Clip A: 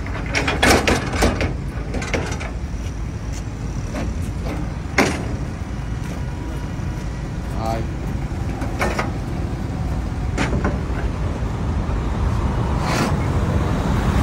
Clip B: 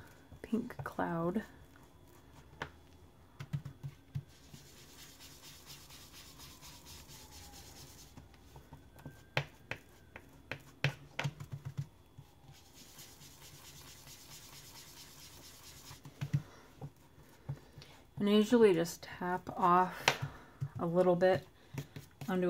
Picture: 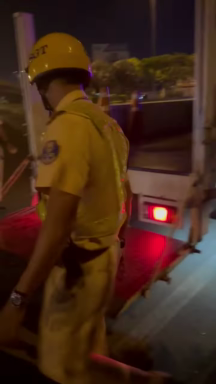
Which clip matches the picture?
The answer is A